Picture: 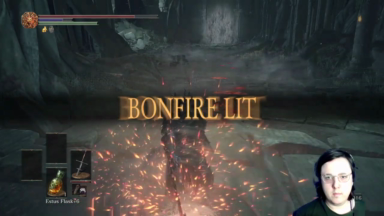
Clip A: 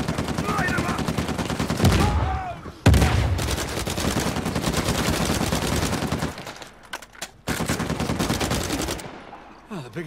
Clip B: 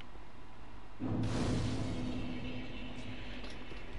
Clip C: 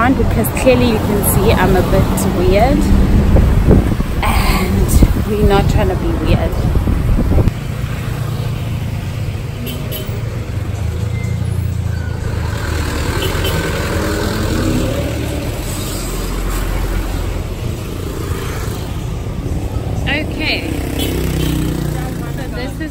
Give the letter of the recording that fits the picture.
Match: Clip B